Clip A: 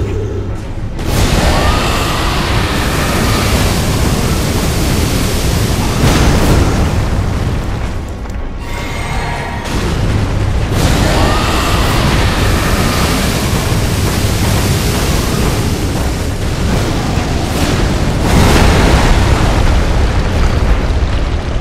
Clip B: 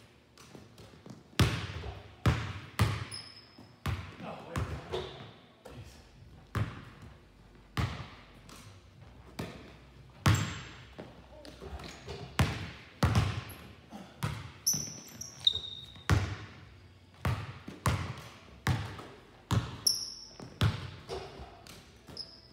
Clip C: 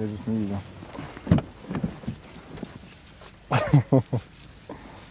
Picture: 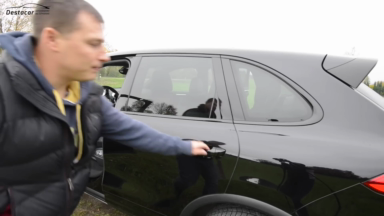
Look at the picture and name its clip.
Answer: C